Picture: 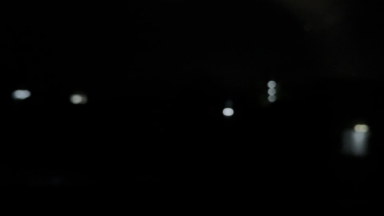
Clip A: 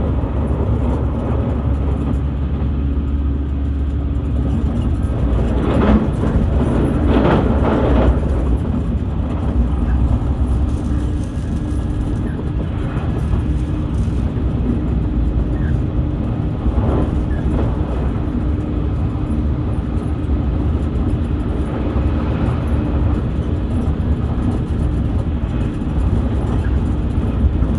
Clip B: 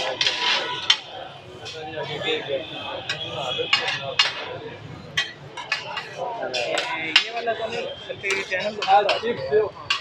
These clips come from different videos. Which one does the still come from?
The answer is A